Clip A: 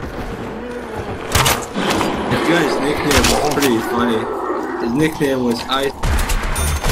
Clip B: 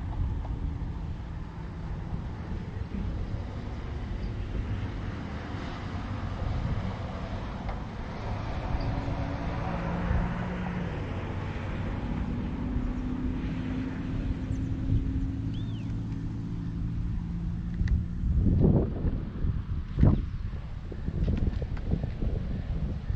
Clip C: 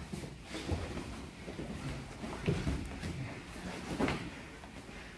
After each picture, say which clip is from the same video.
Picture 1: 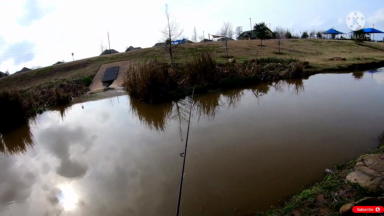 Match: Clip B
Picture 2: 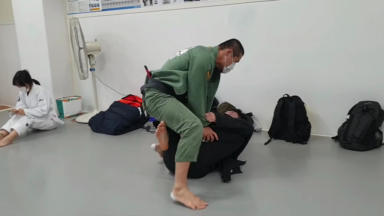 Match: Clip C